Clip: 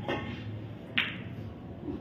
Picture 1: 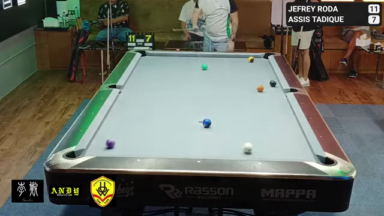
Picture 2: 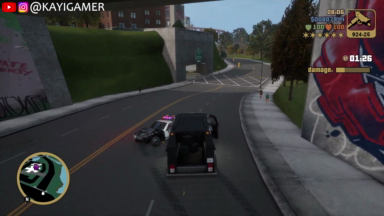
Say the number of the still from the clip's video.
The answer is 1